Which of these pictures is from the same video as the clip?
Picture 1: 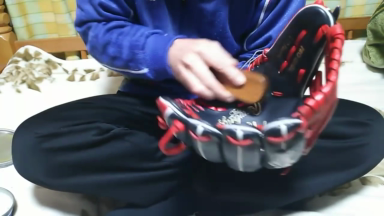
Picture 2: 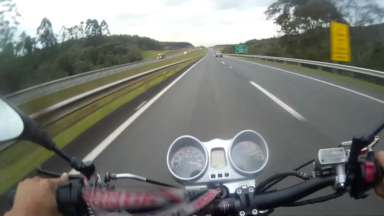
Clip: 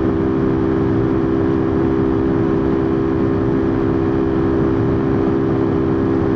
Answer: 2